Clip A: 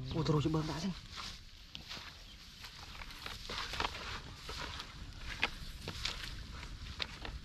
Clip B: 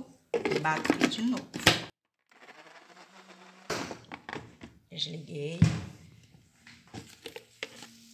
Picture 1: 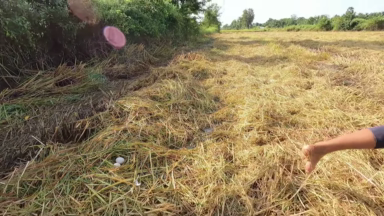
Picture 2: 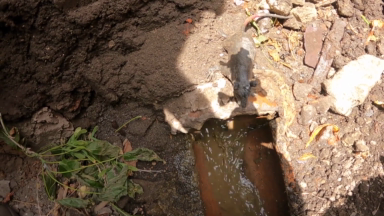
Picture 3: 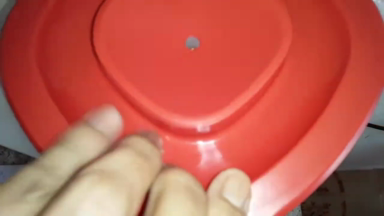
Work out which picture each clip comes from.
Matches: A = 1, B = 3